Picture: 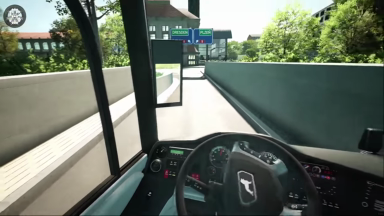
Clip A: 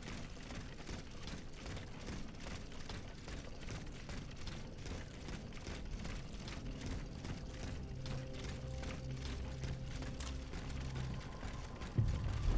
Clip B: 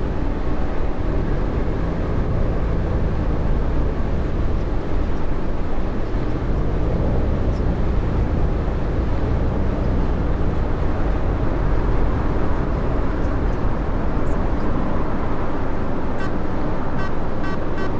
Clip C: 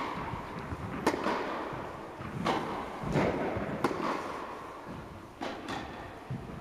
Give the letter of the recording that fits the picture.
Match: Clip B